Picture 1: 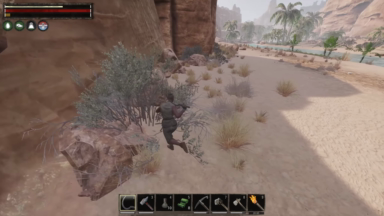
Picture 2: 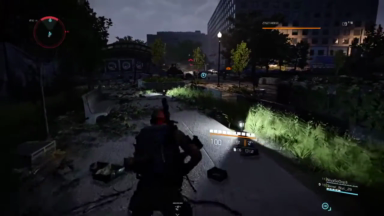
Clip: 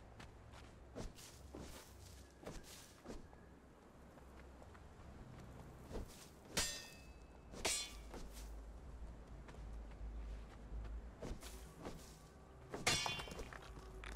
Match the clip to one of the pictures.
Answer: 1